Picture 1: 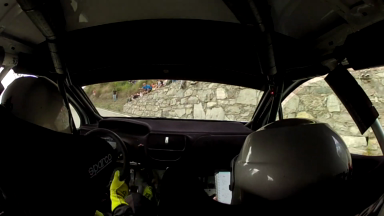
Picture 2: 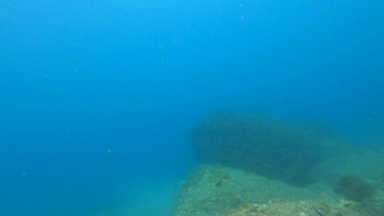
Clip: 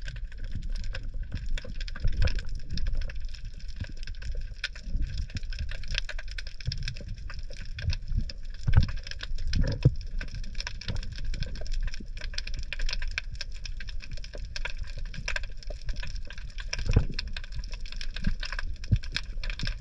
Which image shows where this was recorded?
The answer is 2